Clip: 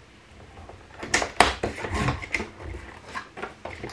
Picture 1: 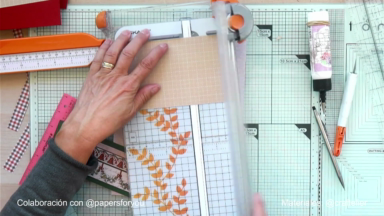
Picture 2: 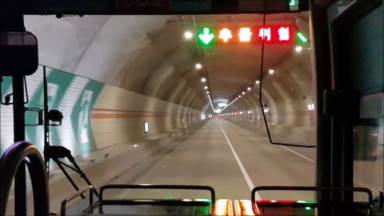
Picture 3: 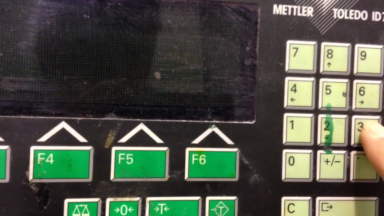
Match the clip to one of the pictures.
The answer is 1